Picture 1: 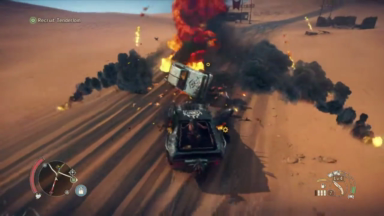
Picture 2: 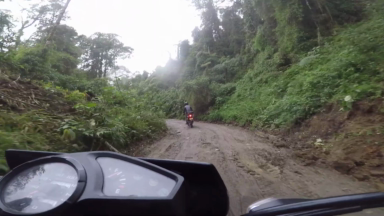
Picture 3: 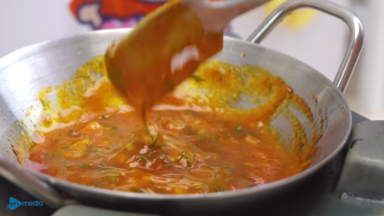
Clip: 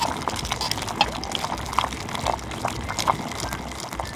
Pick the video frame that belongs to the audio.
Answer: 3